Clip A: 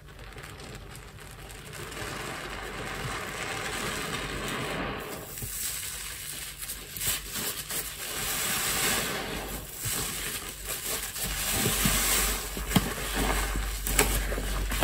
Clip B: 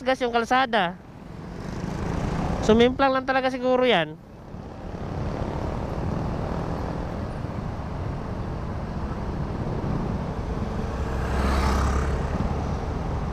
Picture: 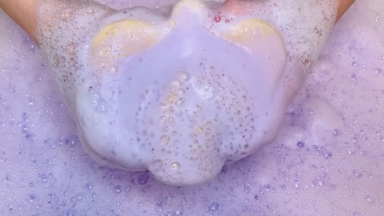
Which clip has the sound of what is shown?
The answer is A